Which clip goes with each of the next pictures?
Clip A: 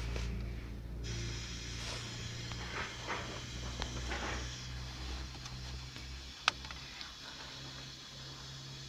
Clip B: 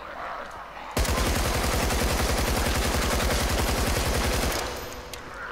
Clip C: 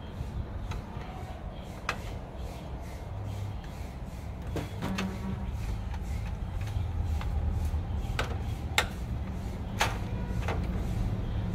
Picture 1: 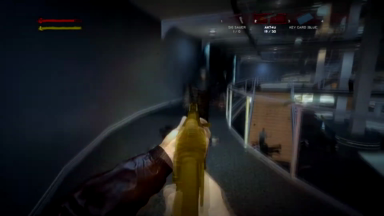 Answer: B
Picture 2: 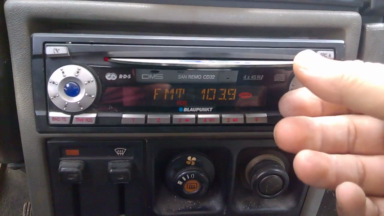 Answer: A